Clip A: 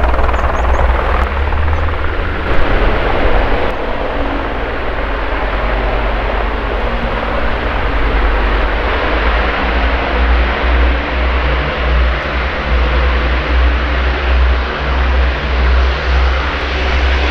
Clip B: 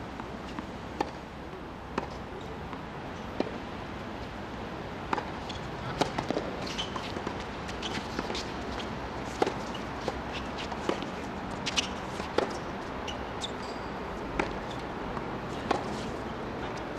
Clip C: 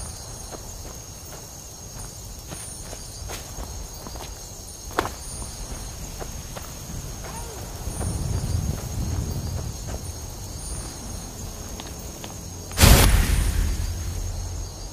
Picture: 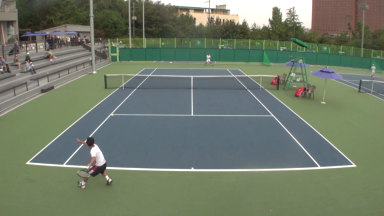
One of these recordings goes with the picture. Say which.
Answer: B